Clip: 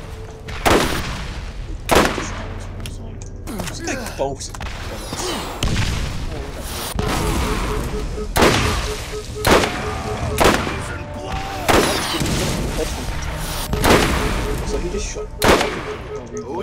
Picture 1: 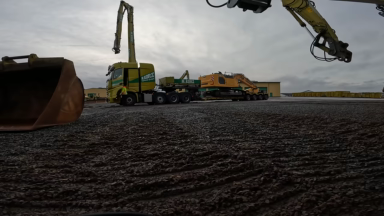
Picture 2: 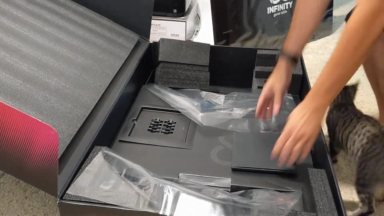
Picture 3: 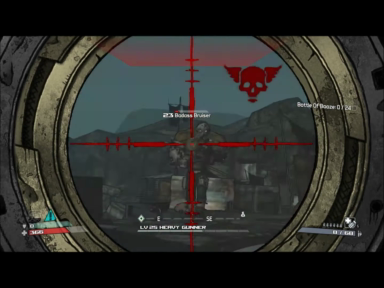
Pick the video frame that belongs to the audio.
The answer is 3